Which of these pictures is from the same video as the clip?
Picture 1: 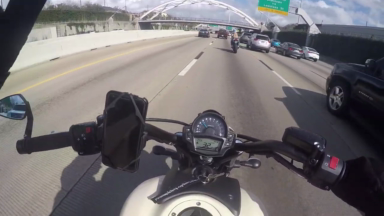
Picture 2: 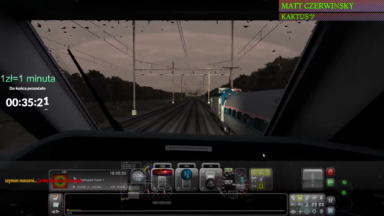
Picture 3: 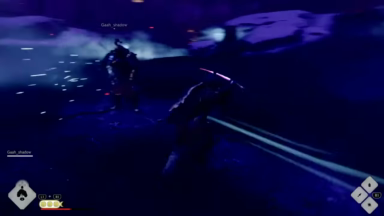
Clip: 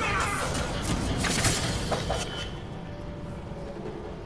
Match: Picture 3